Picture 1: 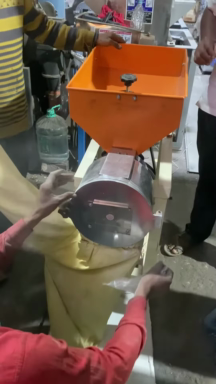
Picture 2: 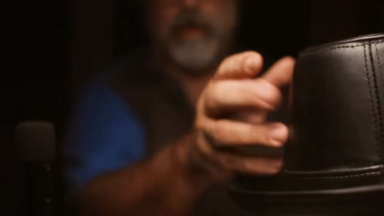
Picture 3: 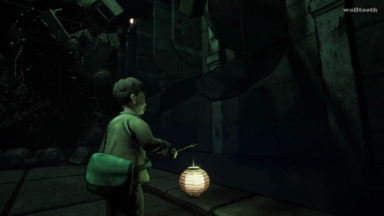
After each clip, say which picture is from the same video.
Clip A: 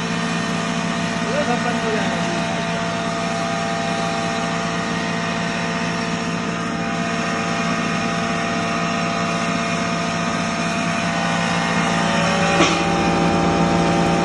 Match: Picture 1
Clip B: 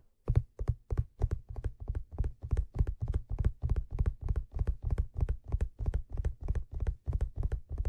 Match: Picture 2